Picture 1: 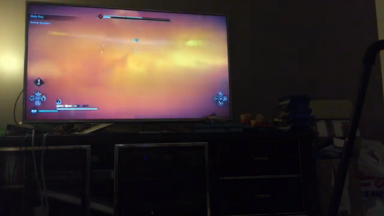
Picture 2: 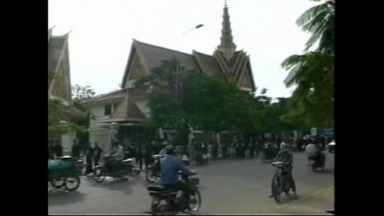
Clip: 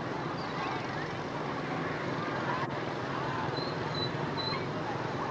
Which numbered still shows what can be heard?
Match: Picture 2